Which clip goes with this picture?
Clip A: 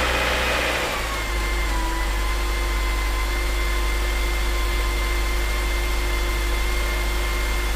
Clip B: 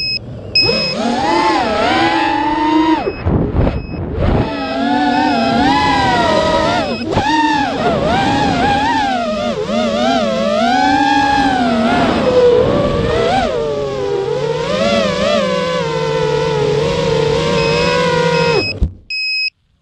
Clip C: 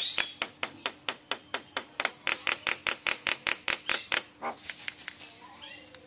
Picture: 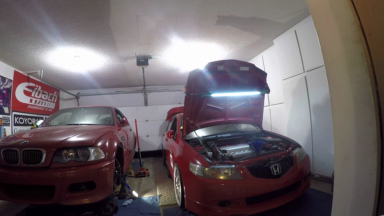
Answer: A